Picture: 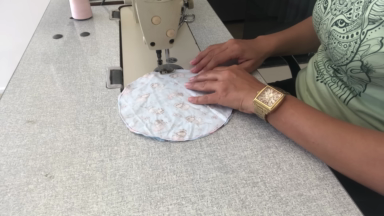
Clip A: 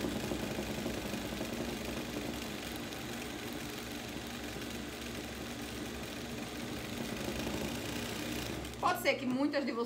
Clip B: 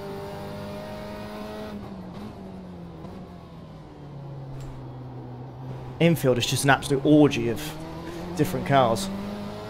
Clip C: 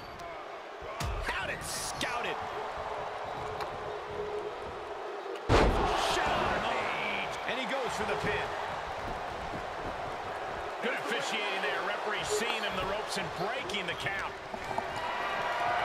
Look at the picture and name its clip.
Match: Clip A